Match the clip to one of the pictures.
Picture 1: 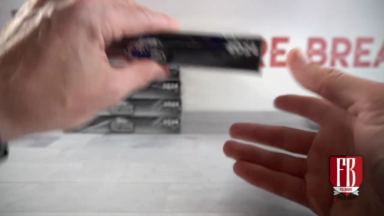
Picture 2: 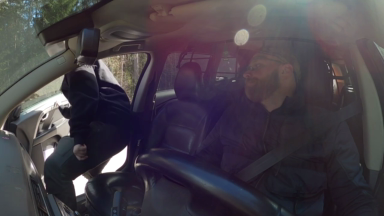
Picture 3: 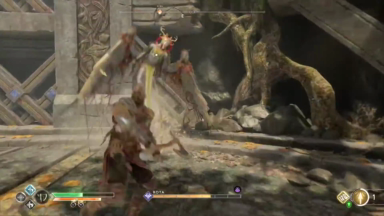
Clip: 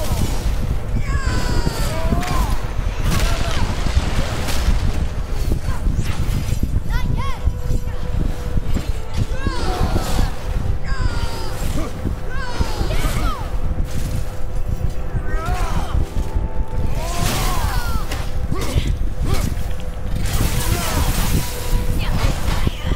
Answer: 3